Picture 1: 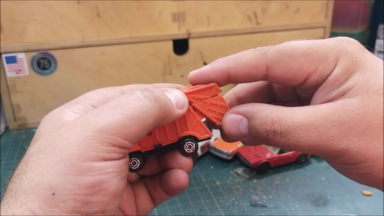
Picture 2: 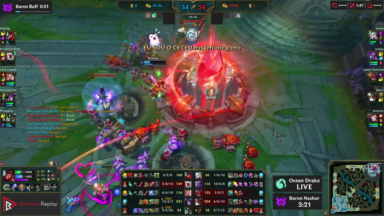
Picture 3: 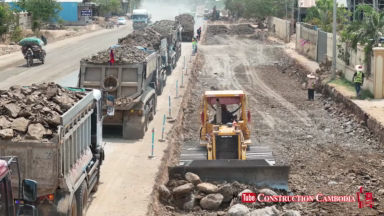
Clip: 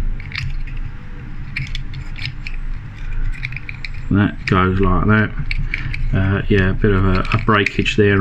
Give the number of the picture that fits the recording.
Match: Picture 1